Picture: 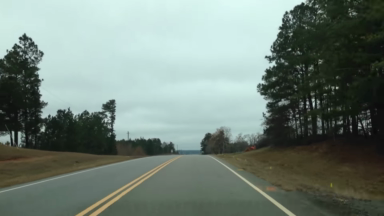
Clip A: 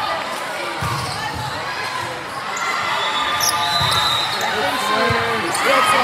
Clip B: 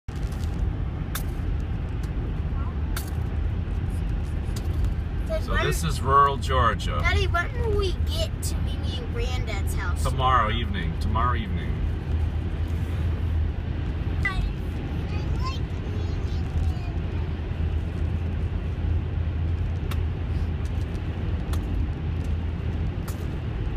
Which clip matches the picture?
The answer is B